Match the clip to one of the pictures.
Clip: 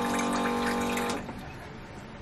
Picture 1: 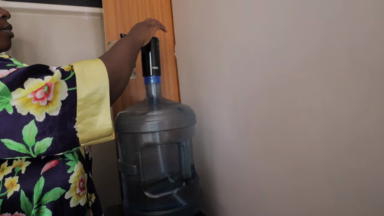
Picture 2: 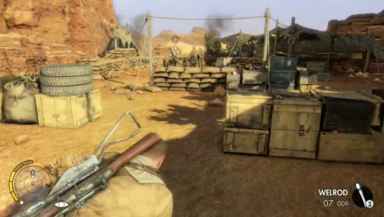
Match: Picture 1